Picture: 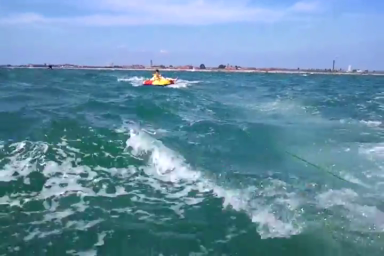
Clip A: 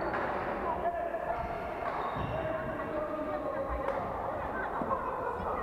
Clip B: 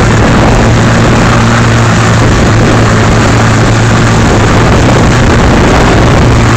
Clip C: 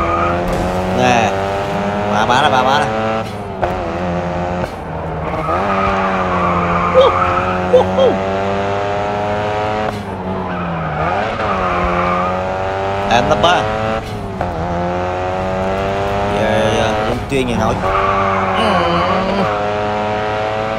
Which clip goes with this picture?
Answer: B